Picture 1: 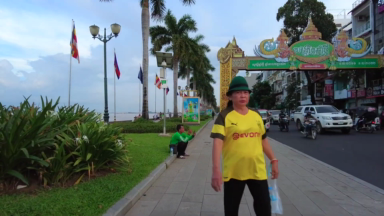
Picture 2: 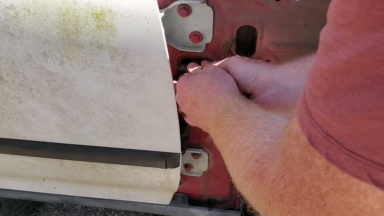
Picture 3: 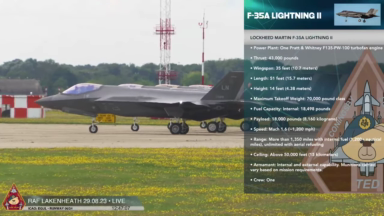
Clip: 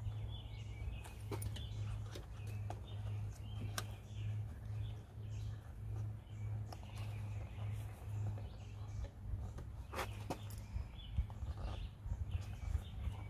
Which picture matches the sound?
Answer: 2